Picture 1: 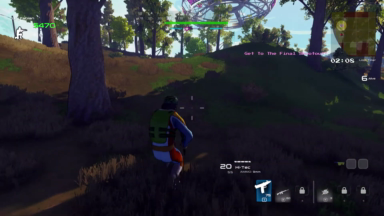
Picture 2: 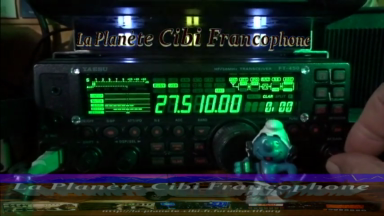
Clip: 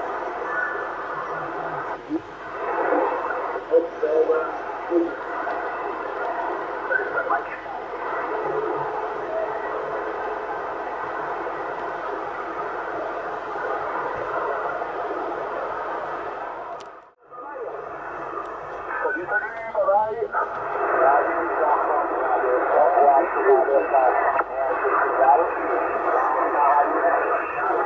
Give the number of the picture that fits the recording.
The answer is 2